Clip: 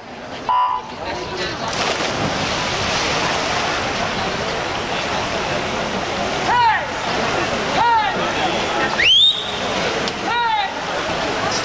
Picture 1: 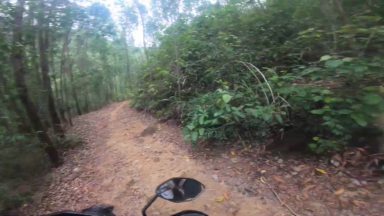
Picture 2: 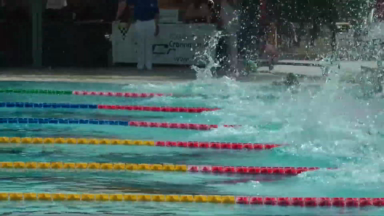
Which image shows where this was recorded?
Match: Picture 2